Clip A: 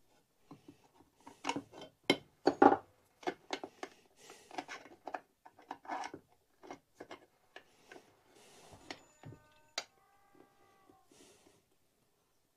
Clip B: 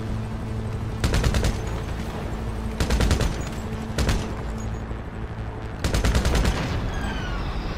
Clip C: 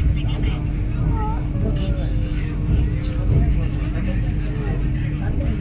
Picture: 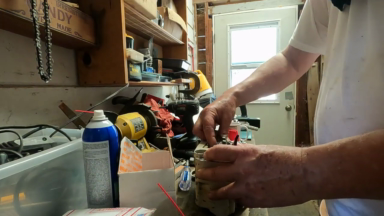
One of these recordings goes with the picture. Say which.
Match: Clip A